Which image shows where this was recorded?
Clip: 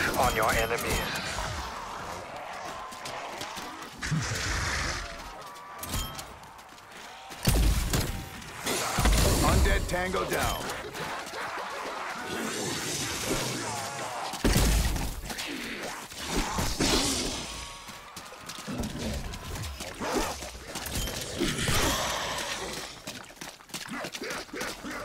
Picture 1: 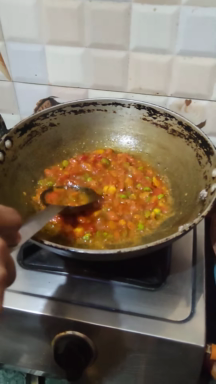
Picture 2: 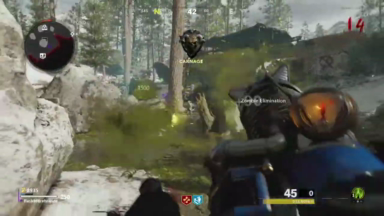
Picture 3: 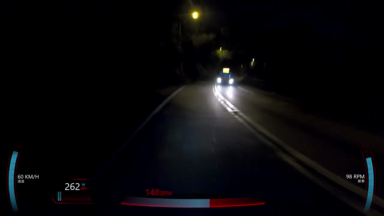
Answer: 2